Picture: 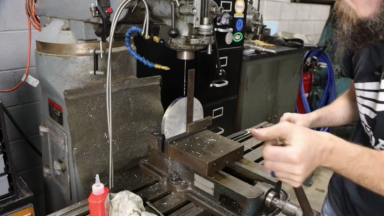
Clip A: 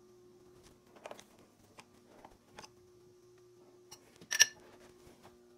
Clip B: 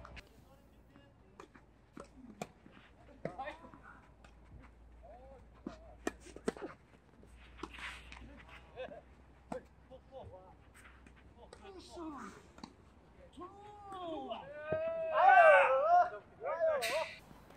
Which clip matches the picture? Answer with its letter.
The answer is A